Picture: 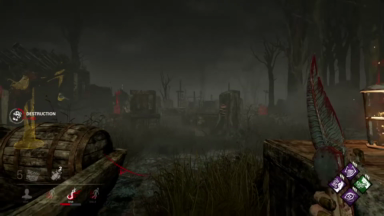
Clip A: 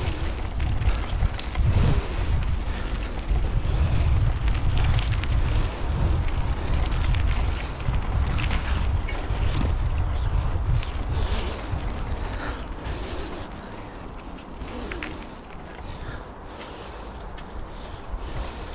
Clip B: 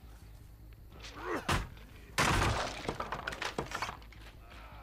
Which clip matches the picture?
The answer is B